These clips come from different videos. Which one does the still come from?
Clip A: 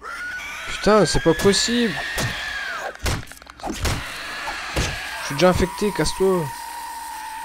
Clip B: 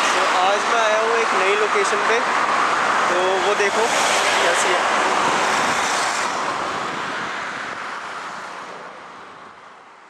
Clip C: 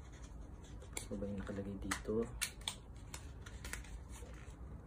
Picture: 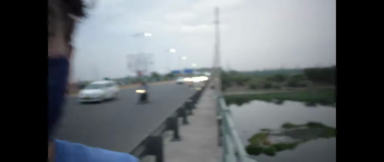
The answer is B